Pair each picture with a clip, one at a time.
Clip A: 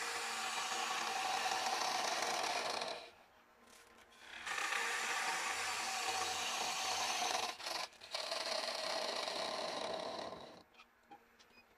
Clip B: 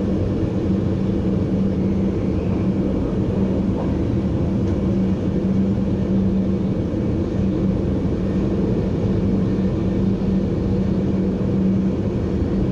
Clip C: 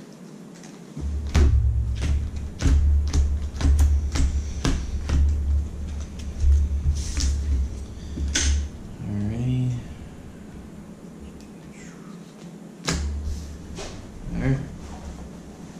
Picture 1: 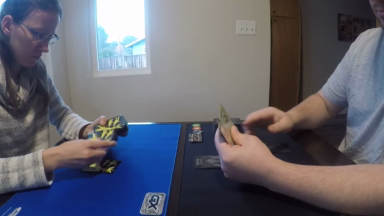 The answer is C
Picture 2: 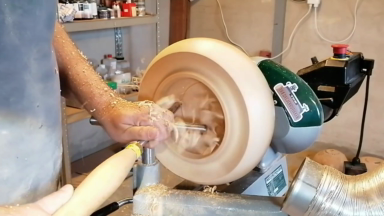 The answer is A